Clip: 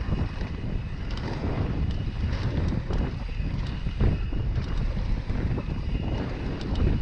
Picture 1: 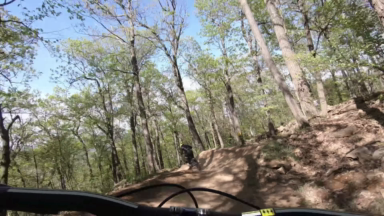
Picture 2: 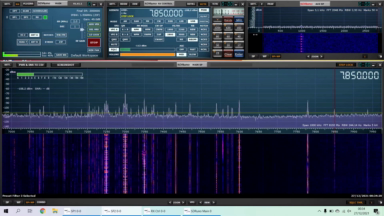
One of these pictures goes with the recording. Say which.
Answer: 1